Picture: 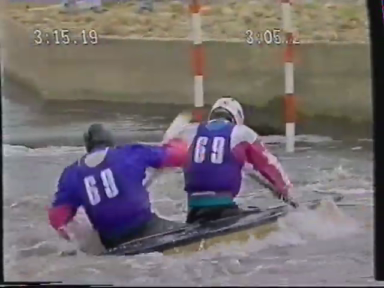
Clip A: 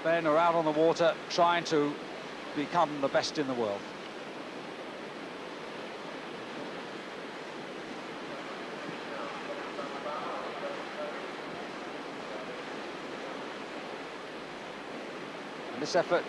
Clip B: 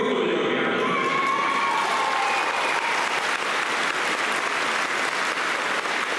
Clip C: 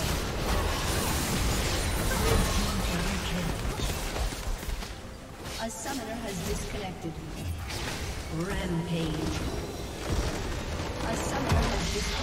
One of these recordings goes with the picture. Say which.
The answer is A